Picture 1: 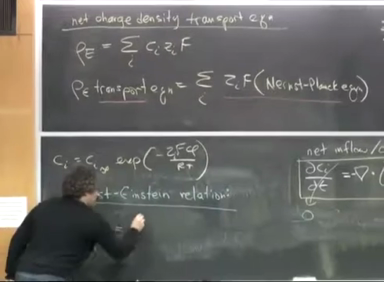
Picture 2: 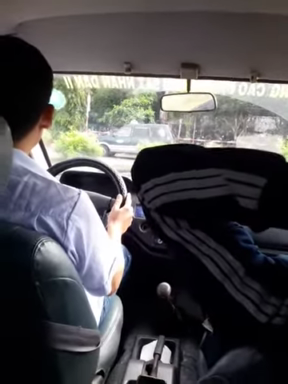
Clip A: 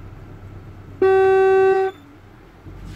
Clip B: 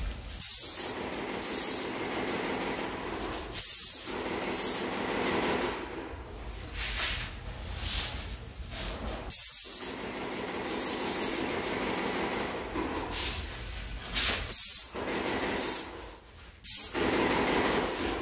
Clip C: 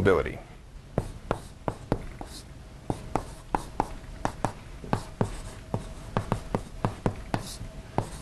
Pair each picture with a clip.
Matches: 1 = C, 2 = A